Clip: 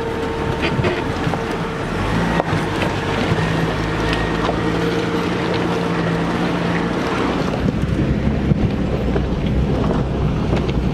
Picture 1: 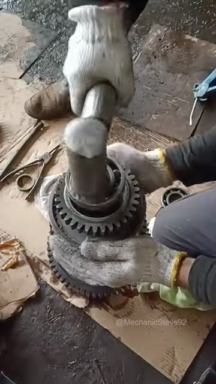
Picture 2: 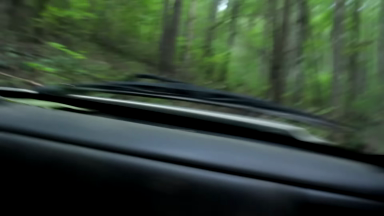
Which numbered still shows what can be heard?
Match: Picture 2